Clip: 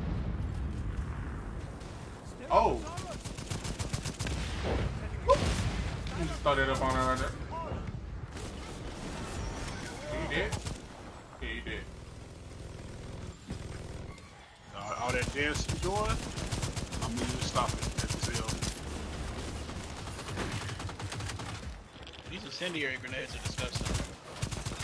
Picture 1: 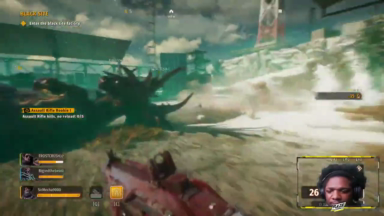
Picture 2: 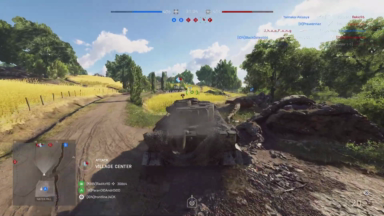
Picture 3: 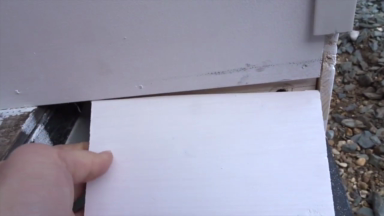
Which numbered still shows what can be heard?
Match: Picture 1